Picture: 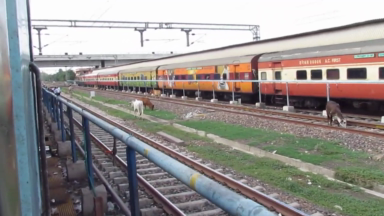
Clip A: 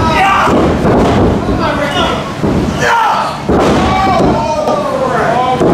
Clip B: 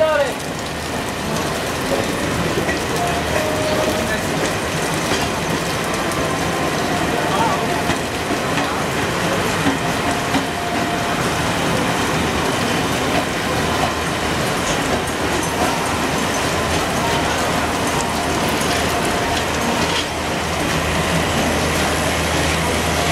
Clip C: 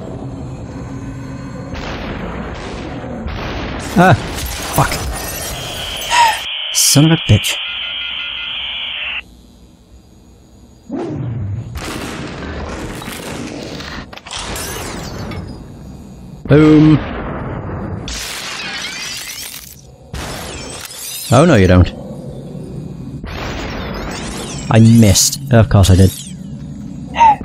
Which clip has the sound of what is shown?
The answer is B